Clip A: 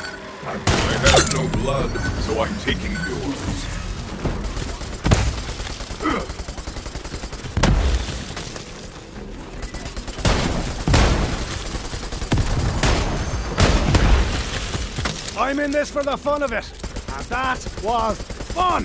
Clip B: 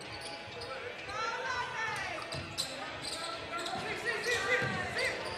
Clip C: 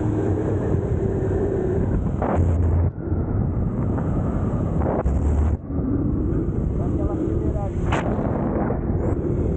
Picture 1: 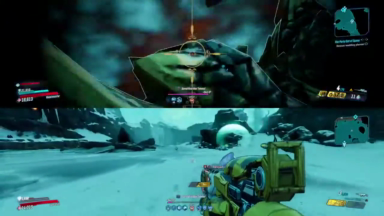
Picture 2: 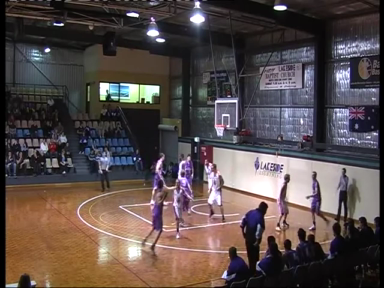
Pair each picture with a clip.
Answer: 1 A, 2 B